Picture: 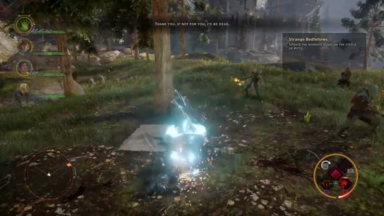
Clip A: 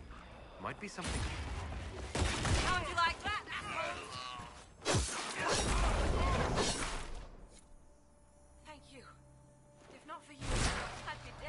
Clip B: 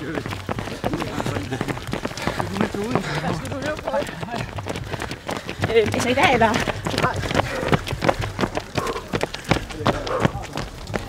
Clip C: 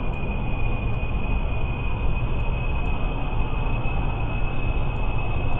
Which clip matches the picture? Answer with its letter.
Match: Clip A